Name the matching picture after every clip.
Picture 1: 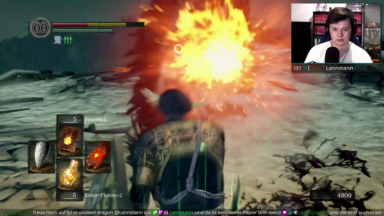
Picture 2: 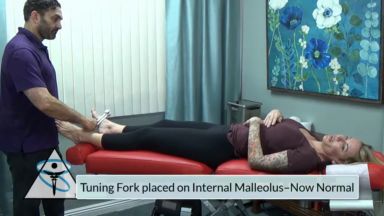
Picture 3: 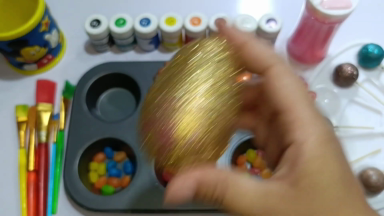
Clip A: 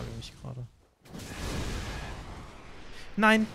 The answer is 1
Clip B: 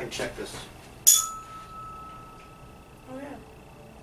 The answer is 2